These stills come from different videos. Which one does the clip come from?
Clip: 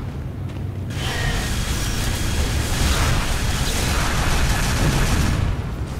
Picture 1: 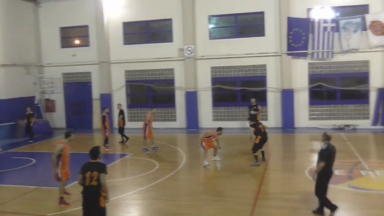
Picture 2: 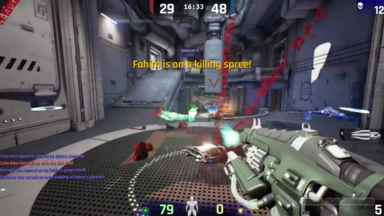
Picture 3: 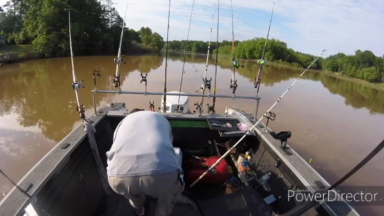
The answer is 2